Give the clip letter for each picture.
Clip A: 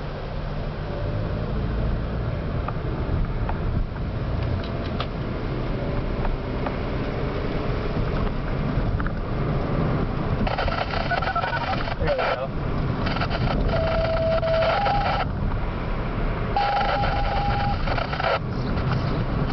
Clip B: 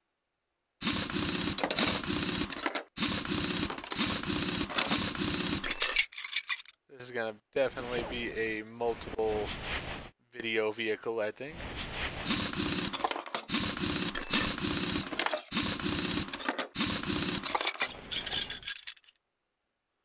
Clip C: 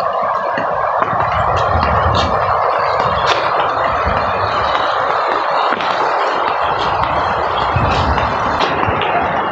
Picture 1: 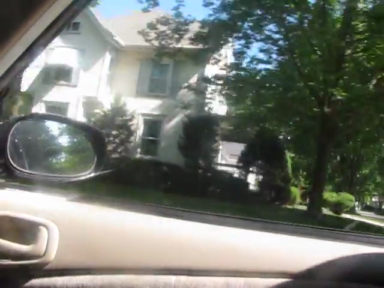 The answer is A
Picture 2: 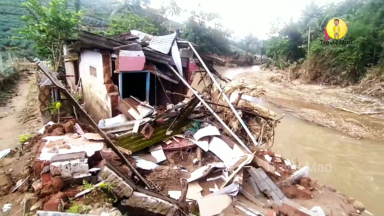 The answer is C